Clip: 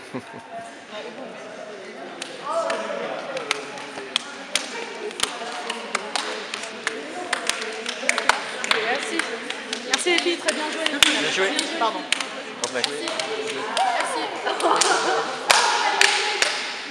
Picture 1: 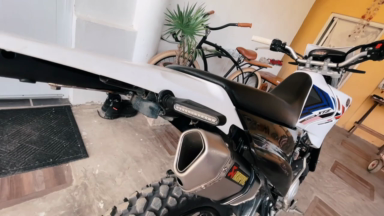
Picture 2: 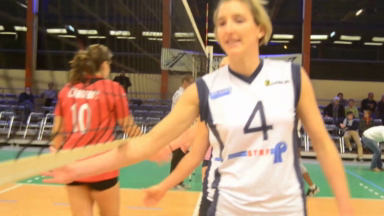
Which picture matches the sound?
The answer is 2